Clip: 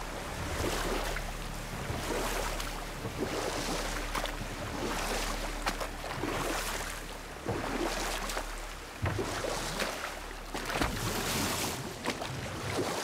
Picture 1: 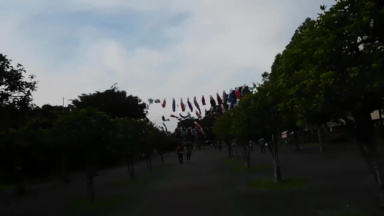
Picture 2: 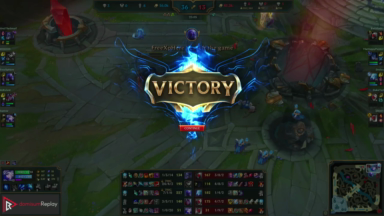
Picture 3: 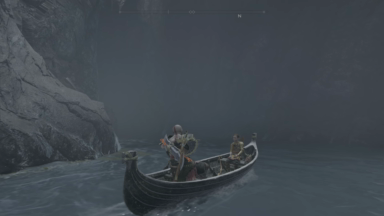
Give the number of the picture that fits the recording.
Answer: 3